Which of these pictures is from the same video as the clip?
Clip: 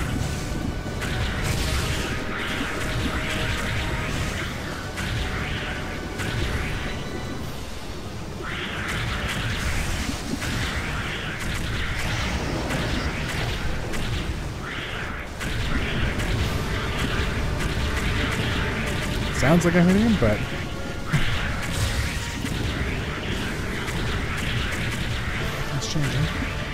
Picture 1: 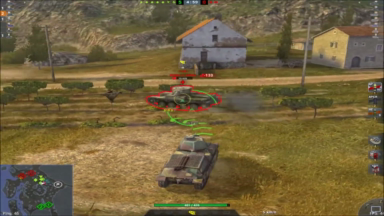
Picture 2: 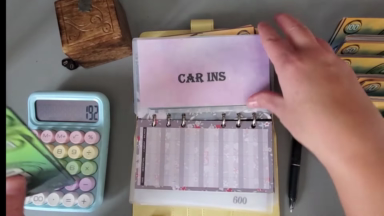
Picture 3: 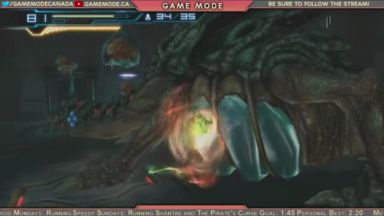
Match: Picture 3